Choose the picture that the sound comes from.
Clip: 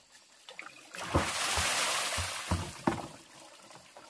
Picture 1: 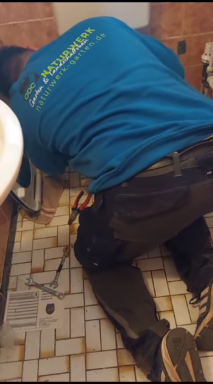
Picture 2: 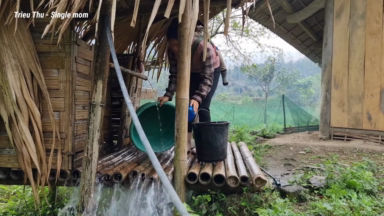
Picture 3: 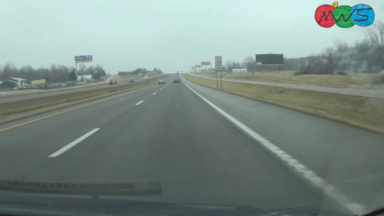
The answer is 2